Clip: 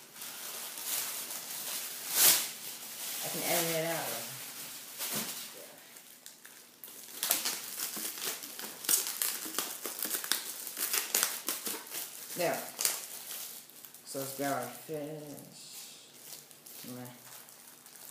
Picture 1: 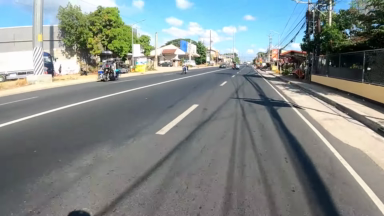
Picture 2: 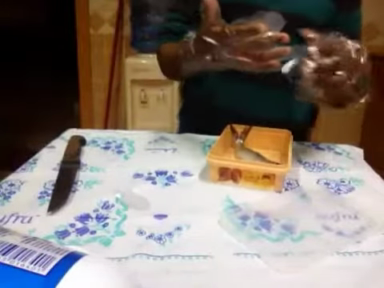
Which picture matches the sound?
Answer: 2